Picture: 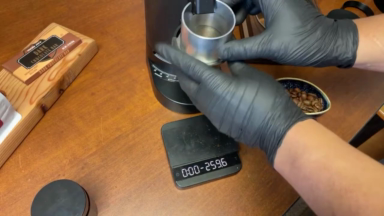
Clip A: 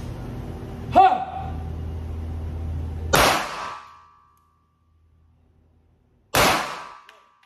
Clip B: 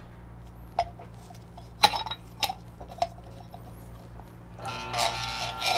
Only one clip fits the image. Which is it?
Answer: B